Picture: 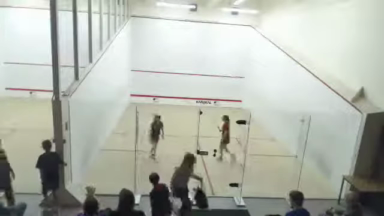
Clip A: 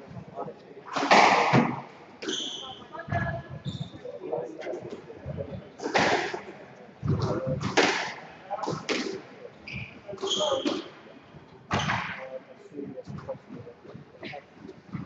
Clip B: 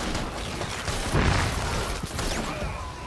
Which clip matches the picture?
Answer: A